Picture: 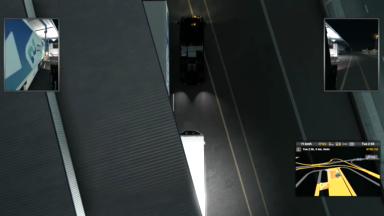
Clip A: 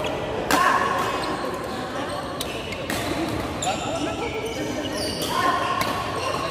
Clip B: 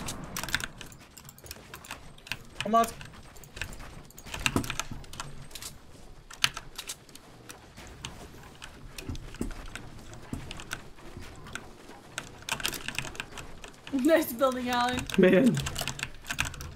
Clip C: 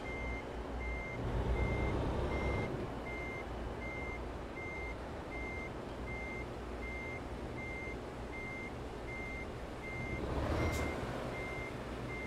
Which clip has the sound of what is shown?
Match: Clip C